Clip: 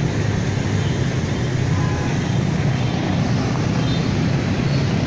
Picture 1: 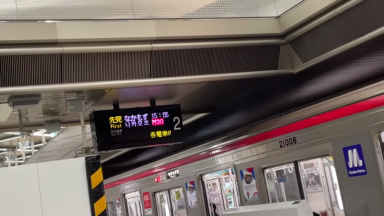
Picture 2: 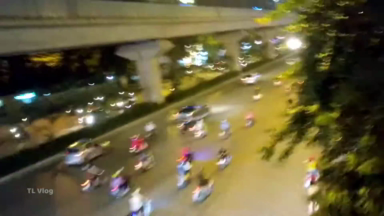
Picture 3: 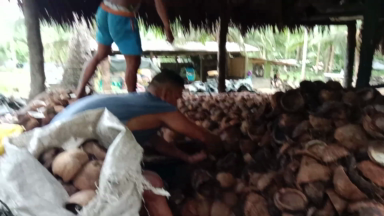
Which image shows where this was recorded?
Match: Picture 2